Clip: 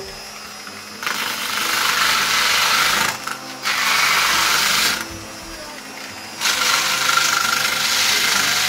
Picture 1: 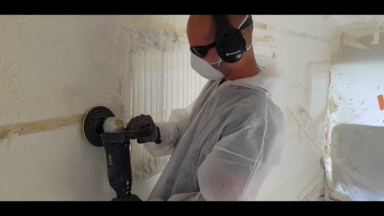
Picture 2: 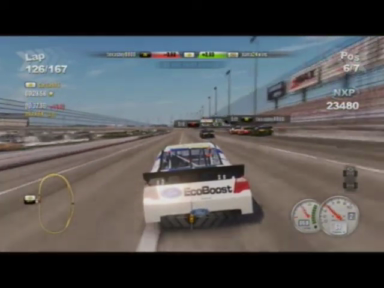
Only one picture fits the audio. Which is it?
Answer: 1